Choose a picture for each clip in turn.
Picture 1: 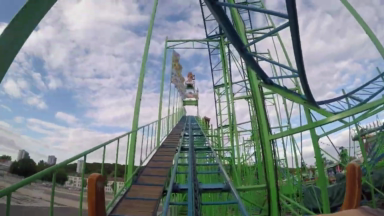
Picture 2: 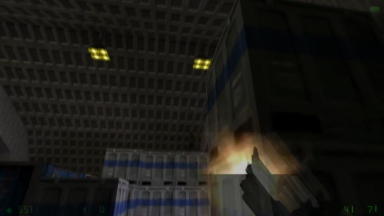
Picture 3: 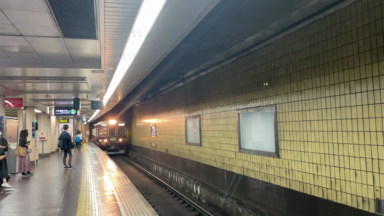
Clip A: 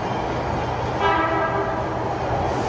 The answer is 3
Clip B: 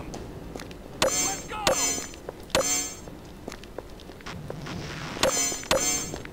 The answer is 2